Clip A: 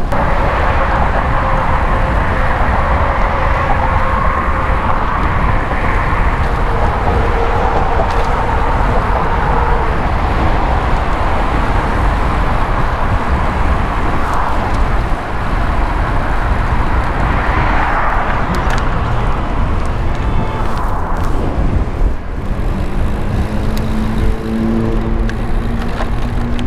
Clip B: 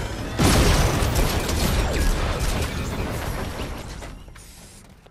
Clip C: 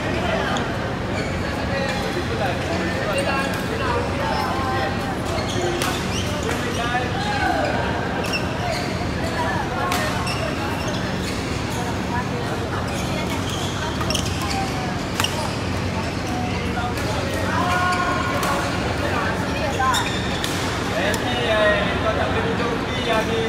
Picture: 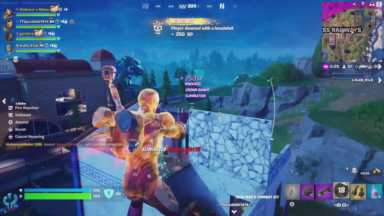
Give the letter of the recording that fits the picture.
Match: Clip B